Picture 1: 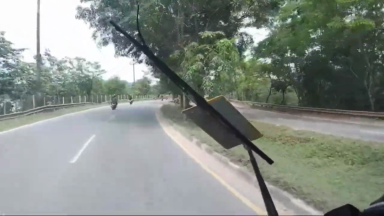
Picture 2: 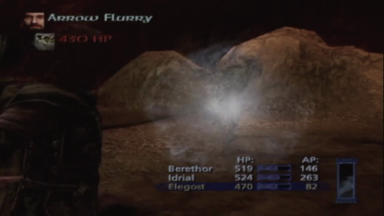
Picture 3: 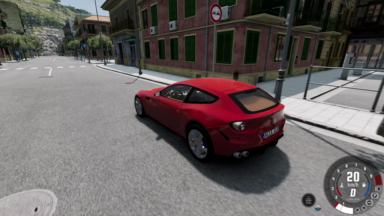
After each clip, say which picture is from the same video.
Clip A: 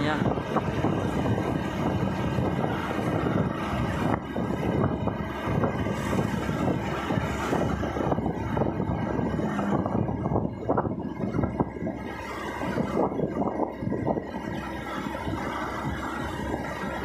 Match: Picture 1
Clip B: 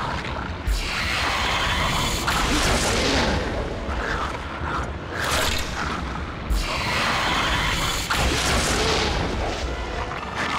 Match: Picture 2